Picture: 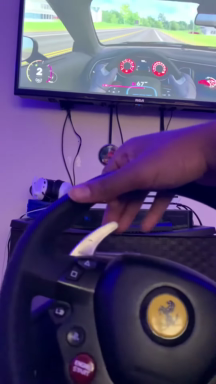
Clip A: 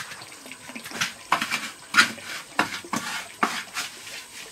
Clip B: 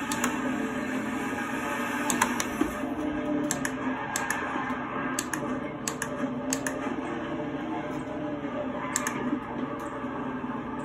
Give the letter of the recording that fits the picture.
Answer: B